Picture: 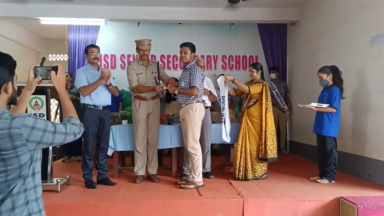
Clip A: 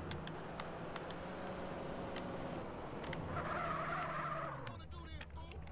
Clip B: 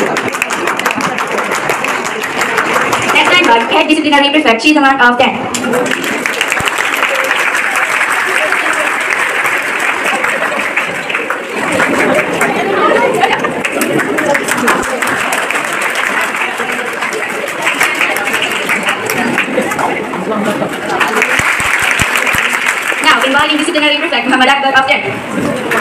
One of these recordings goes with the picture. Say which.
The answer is B